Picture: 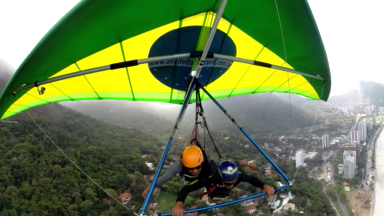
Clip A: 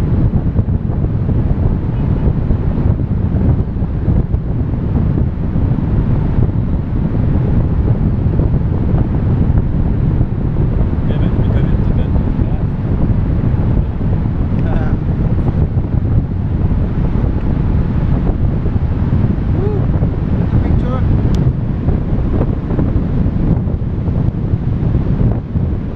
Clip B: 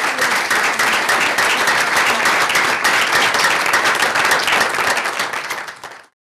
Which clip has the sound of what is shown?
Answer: A